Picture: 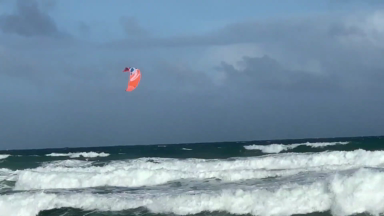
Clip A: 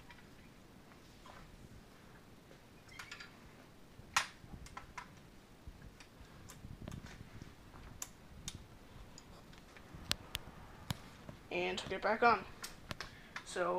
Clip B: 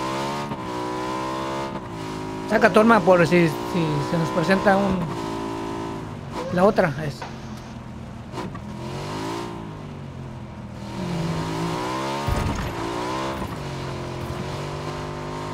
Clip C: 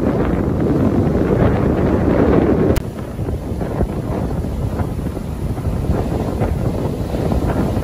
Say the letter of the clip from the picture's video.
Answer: C